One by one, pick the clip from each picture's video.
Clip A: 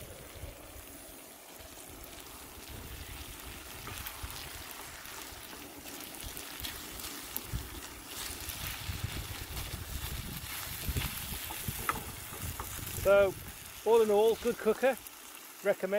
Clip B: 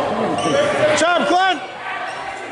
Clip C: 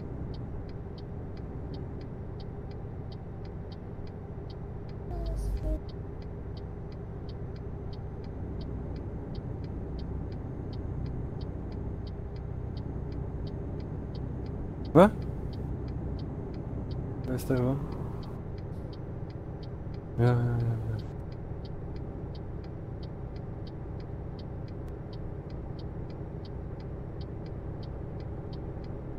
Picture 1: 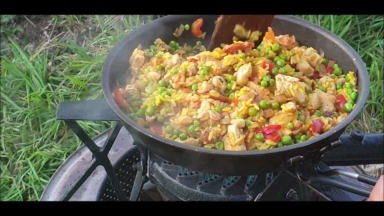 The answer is A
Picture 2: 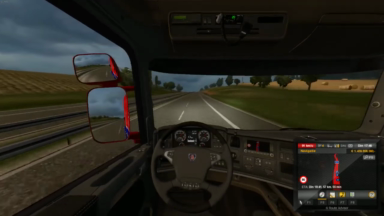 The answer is C